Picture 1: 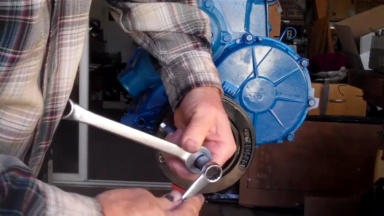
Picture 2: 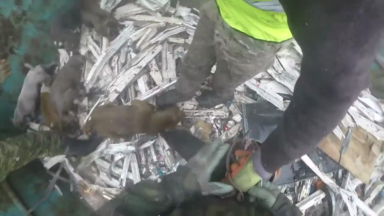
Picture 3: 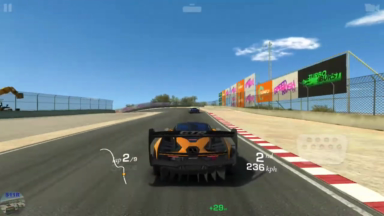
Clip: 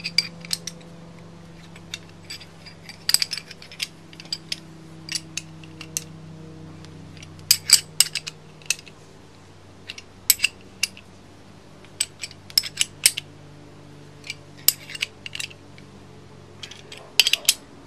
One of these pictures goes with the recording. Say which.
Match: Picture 1